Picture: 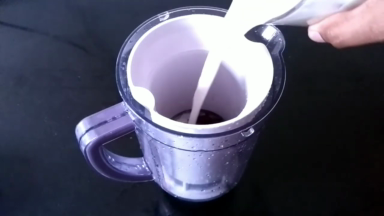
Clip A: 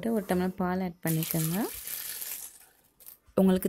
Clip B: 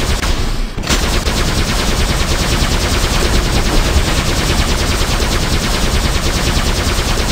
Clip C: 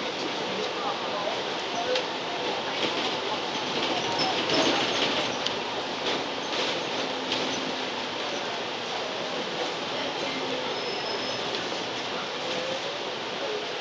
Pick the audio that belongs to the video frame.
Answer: A